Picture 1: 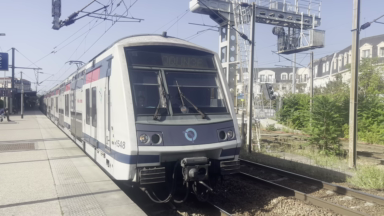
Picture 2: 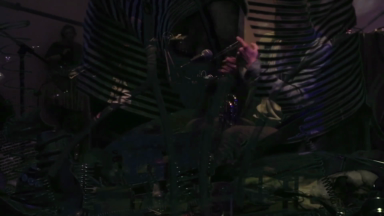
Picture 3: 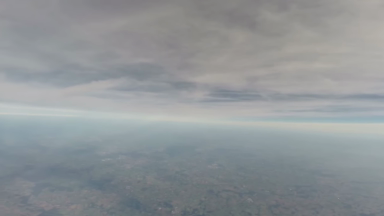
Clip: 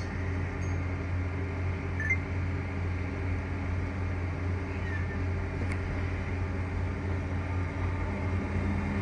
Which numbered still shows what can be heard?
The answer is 1